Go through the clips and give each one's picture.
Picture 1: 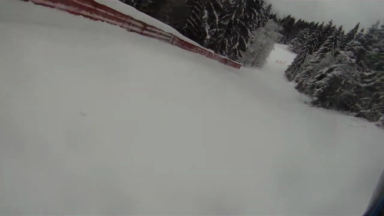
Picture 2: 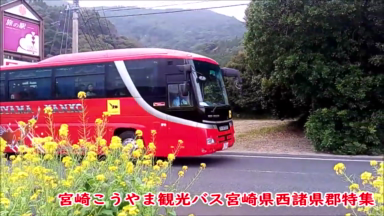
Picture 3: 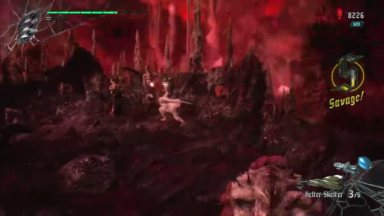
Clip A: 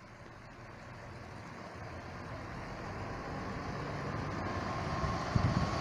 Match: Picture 2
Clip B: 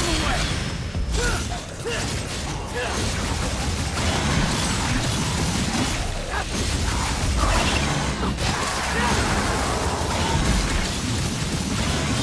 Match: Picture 3